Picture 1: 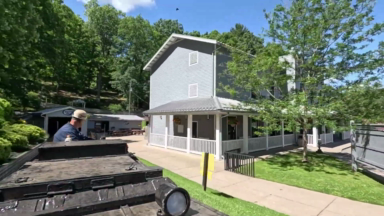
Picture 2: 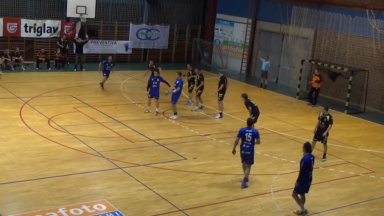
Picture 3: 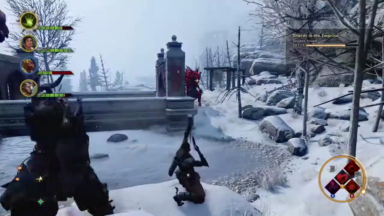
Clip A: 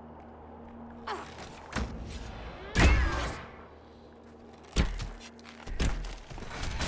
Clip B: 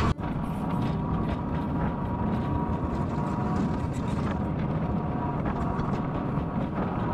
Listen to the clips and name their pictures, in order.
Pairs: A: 3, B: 1